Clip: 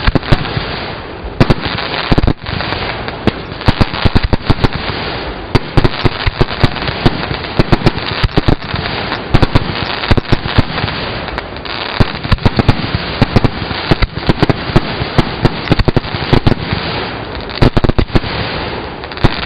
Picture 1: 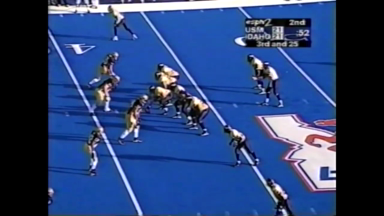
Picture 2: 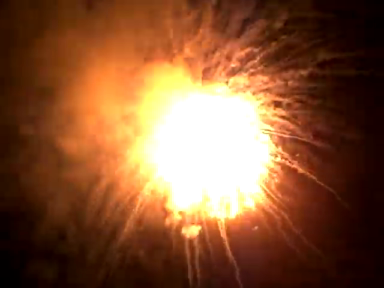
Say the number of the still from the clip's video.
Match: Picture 2